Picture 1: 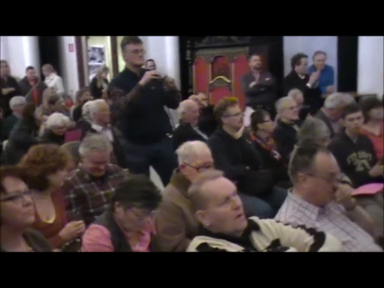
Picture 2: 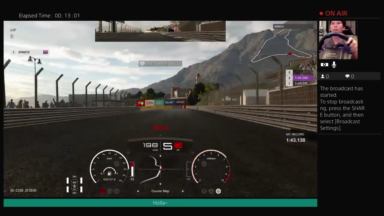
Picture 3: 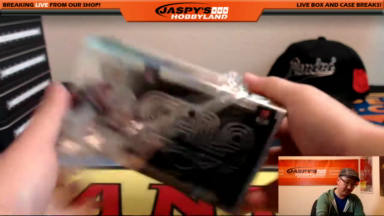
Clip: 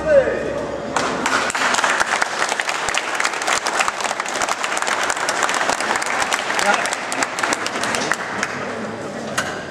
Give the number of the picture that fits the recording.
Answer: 1